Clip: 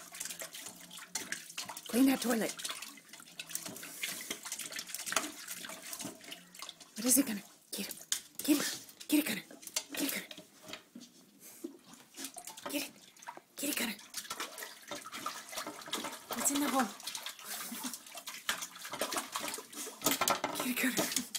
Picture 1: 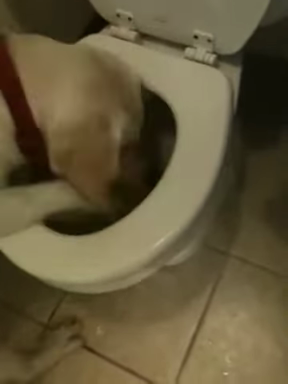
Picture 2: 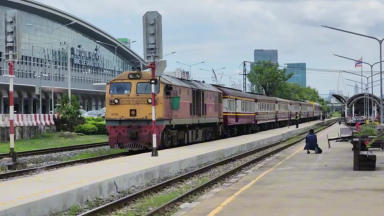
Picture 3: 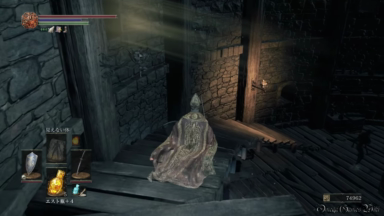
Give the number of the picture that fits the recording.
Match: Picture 1